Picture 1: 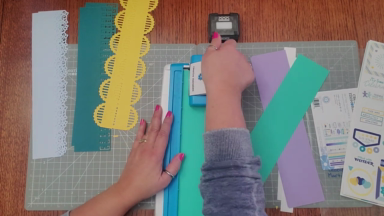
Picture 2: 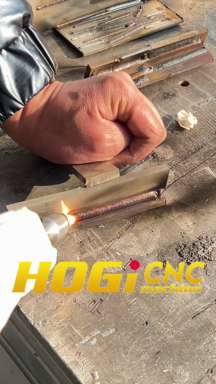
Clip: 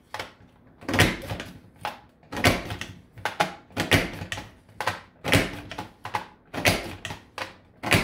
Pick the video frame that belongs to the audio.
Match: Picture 1